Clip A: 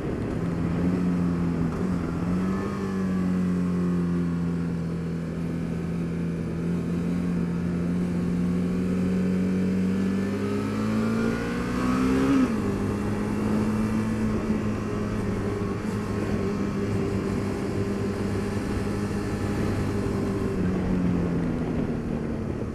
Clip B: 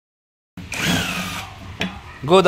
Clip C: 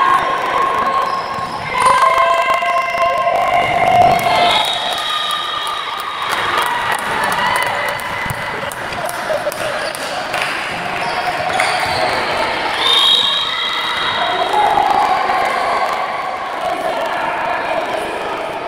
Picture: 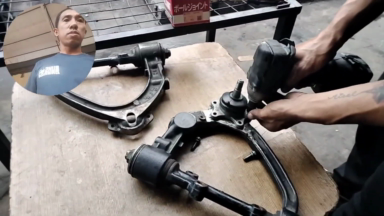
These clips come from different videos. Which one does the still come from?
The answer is B